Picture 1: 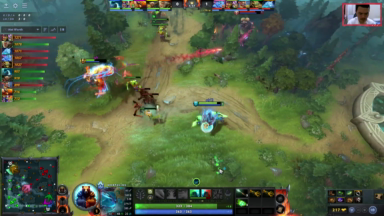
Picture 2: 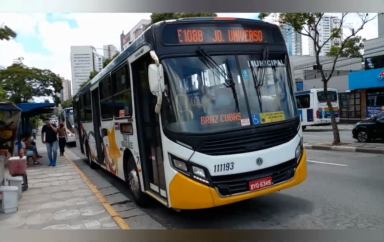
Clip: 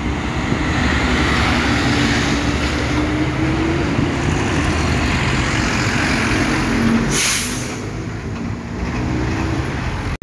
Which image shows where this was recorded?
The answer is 2